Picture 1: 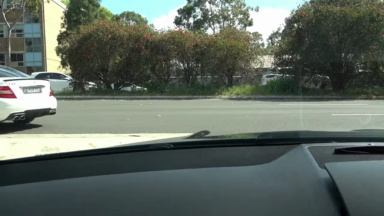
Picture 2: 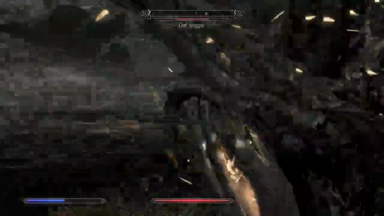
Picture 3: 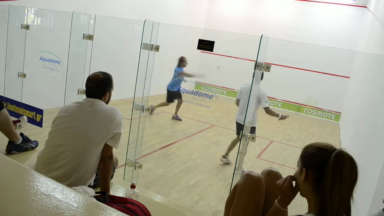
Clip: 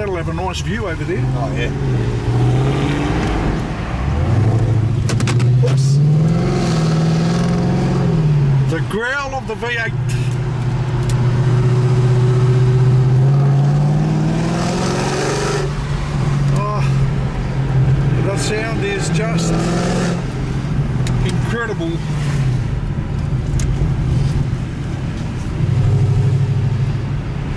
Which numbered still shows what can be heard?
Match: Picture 1